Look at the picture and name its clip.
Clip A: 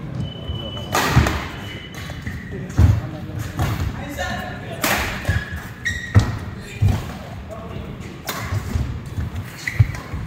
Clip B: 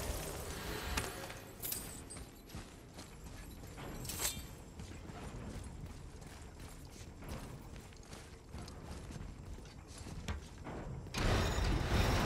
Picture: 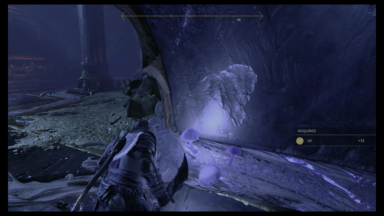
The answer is B